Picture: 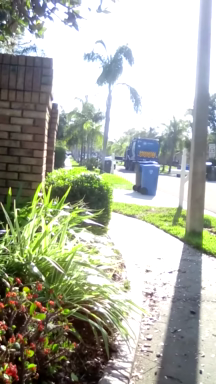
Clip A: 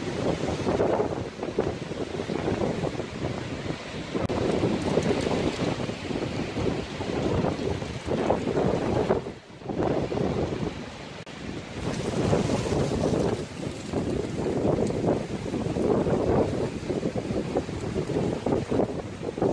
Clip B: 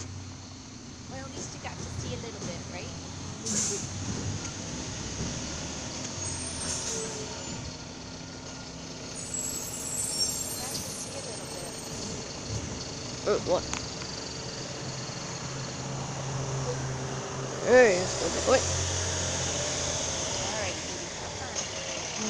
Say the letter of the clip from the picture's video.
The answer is B